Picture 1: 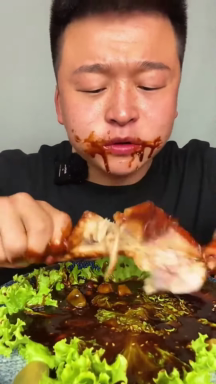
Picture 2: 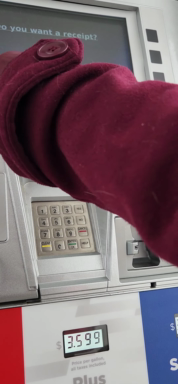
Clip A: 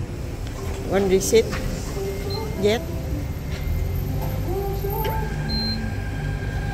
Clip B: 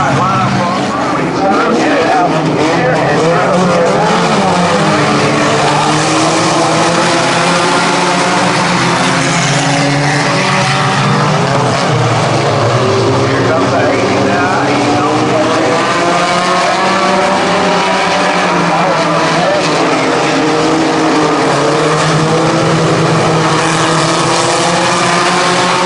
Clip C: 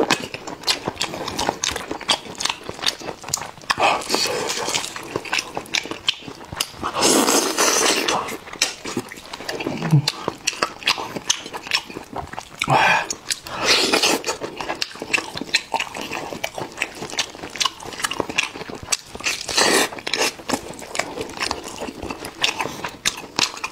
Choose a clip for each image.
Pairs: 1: C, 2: A